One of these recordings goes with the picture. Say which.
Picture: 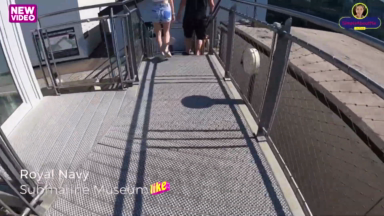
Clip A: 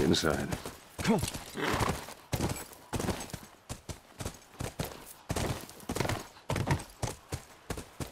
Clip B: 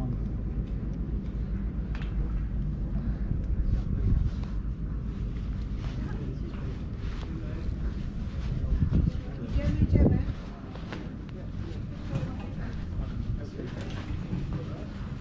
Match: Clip B